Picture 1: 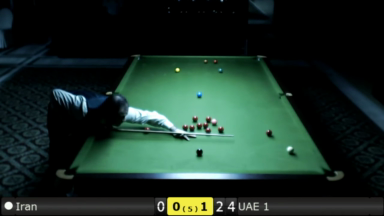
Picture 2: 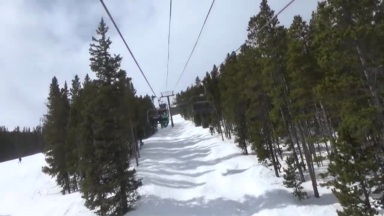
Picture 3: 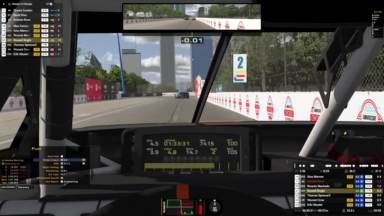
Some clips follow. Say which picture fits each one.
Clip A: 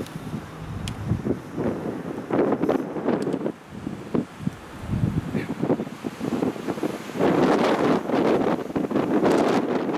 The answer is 2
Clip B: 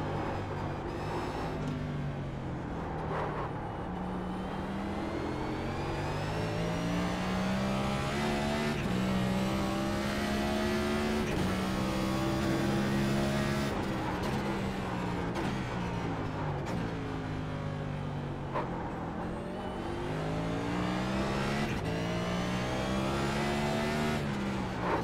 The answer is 3